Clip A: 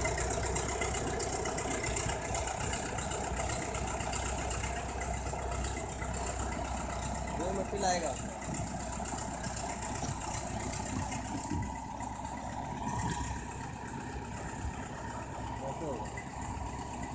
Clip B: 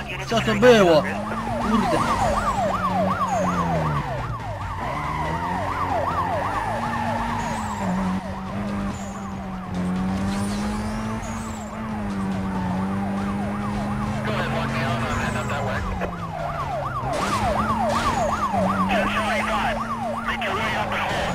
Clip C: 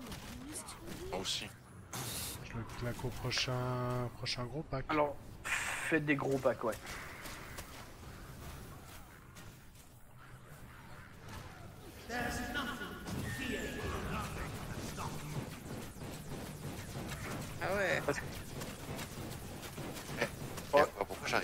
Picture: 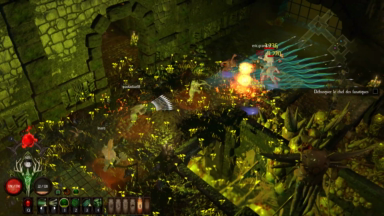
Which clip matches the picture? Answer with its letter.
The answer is C